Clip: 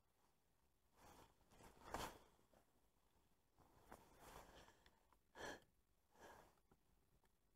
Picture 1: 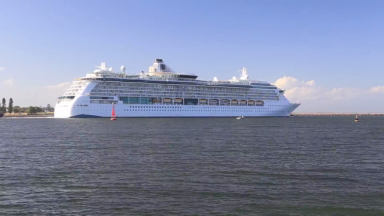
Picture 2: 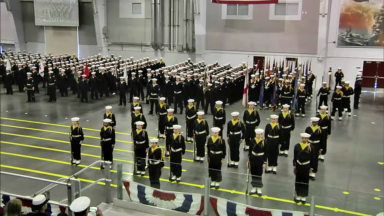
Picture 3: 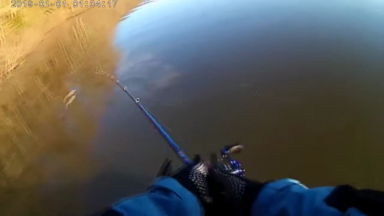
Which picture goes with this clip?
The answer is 3